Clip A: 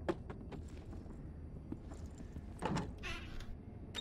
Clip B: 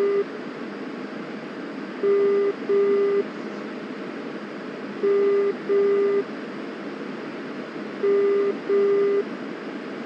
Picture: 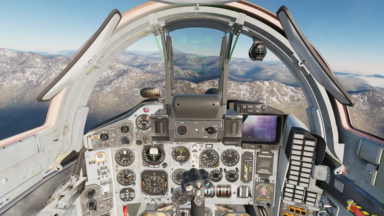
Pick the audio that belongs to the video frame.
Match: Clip B